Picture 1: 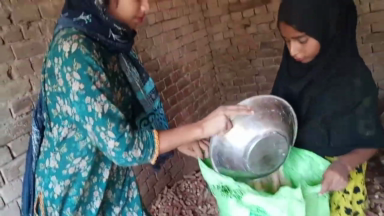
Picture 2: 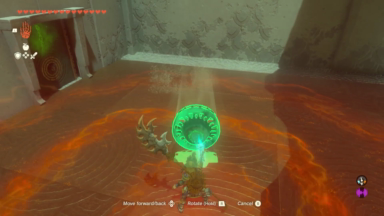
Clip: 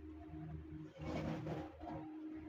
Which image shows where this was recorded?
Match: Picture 1